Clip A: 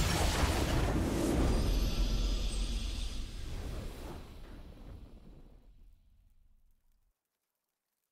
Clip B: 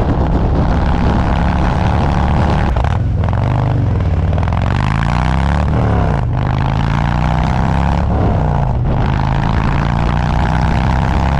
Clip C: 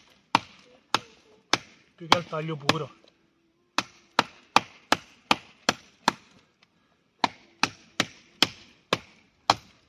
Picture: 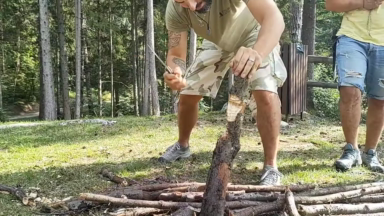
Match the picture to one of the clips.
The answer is C